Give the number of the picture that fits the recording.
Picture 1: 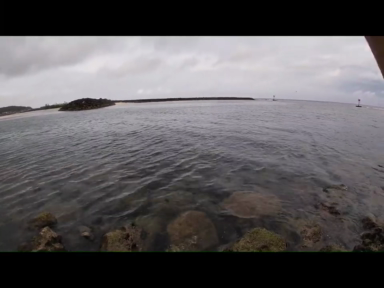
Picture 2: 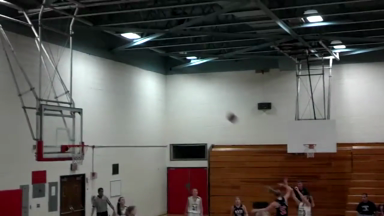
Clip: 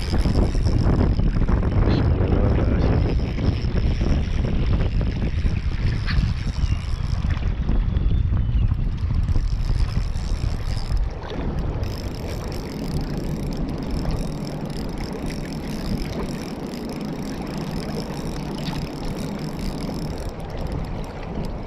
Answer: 1